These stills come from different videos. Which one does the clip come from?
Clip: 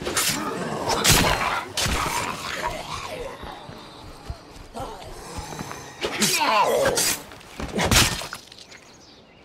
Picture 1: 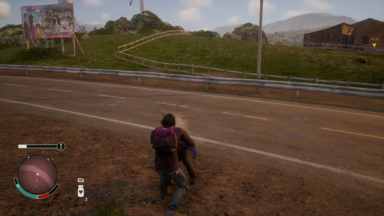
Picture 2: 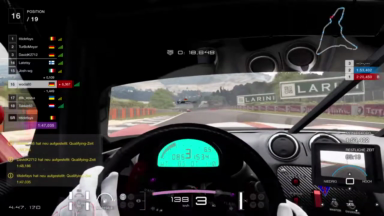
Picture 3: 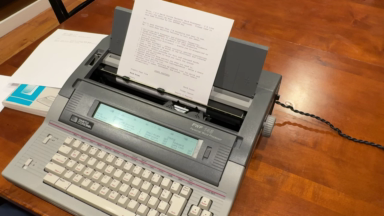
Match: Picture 1